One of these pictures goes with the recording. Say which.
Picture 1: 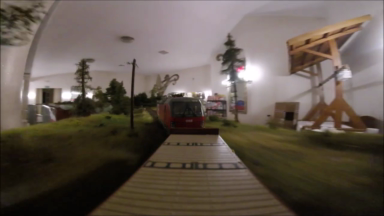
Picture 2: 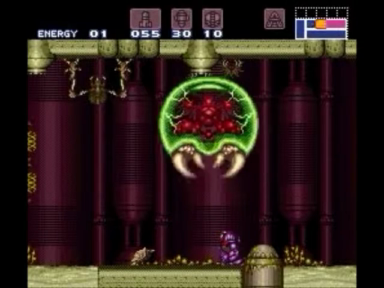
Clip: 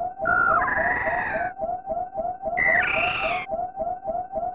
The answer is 2